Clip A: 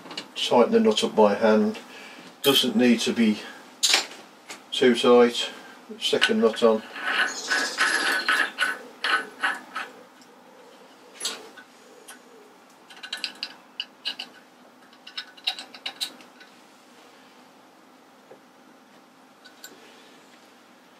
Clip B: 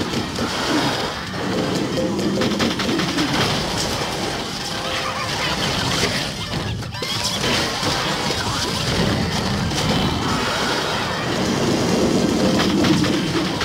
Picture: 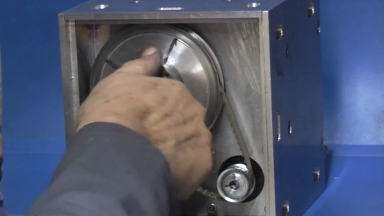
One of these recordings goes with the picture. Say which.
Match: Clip A